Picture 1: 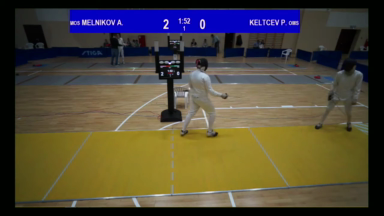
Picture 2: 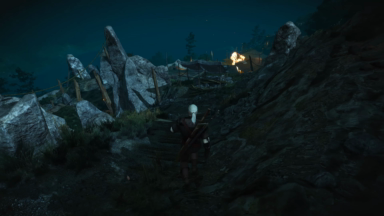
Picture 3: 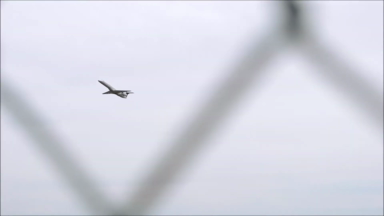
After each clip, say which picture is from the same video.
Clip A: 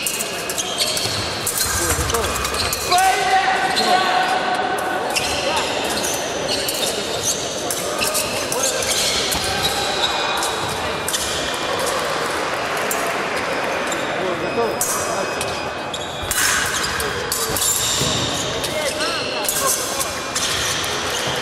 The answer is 1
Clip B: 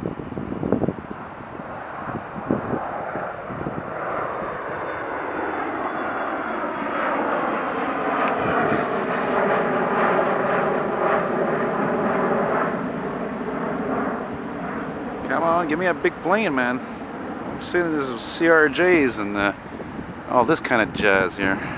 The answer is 3